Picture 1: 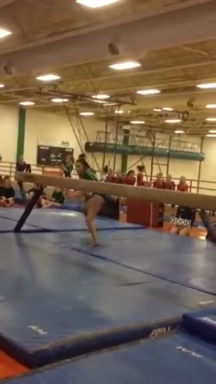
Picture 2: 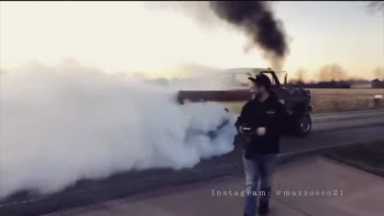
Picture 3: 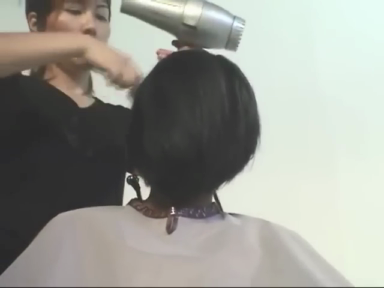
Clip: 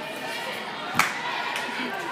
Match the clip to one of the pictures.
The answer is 1